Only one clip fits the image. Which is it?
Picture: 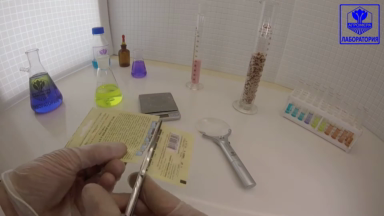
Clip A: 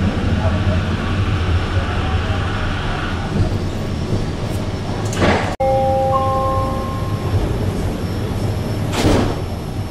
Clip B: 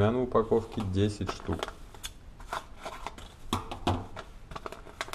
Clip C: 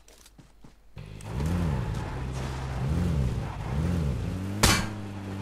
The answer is B